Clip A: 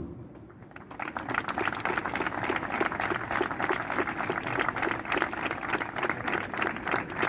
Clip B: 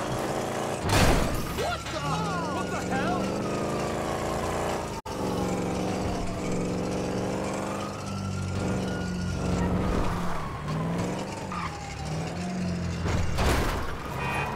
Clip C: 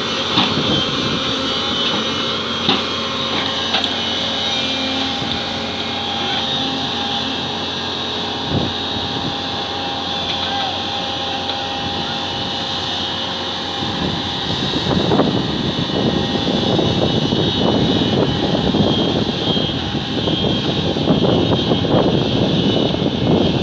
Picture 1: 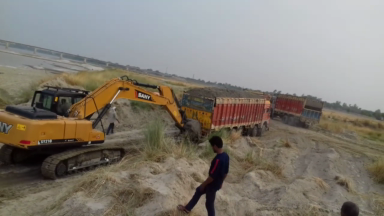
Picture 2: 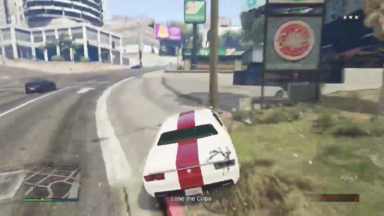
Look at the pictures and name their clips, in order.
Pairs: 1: C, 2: B